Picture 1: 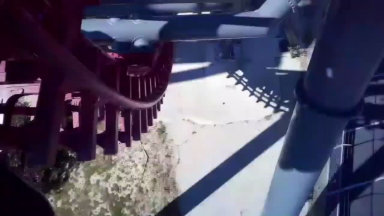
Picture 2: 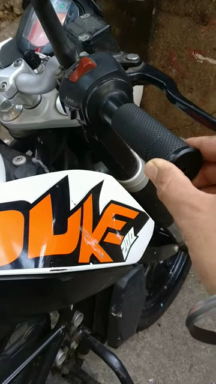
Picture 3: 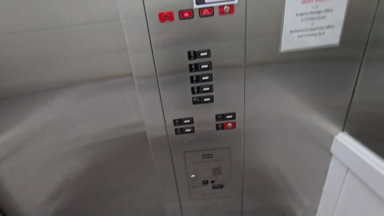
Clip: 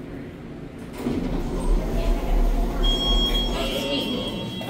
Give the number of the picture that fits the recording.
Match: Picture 3